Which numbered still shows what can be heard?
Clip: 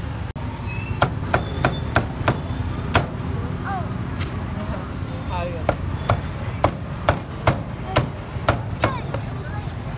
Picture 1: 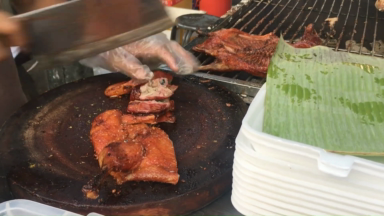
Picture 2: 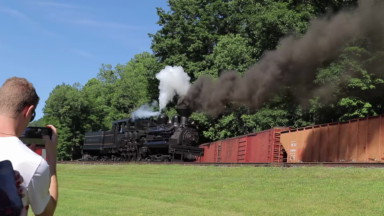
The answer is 1